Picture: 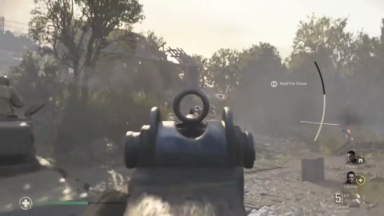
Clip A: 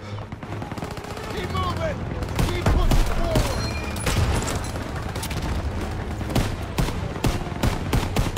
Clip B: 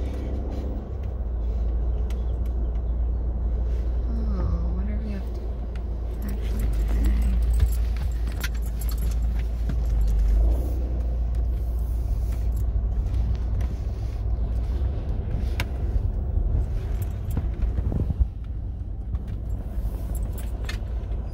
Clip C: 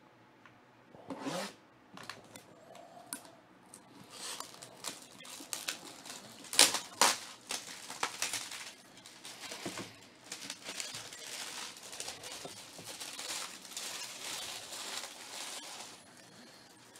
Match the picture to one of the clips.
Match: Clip A